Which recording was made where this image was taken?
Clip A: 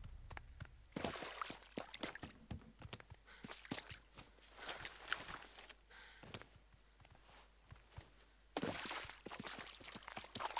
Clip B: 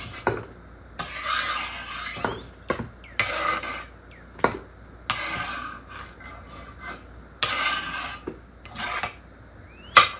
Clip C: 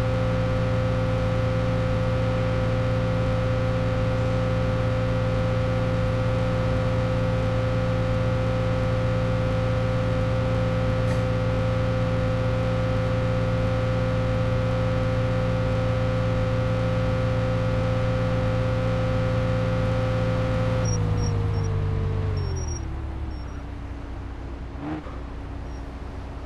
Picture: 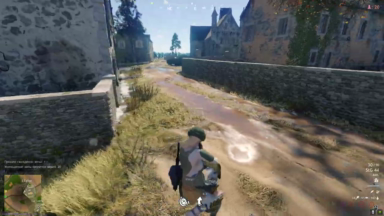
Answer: A